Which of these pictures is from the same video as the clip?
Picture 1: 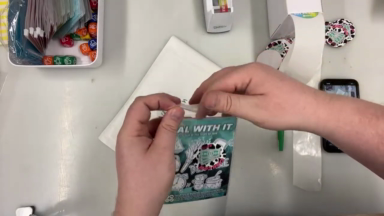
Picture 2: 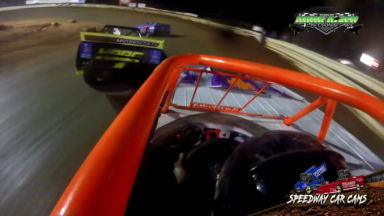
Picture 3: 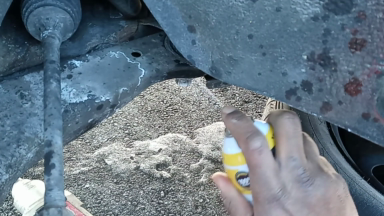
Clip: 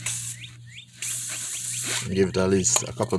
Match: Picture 3